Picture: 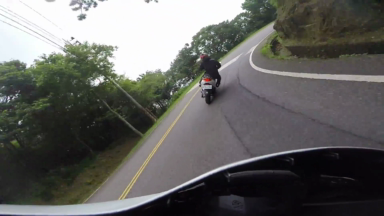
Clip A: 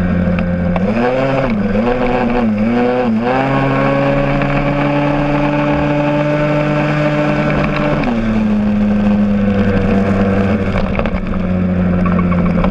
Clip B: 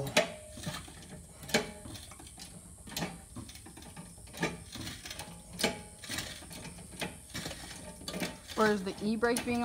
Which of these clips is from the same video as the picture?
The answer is A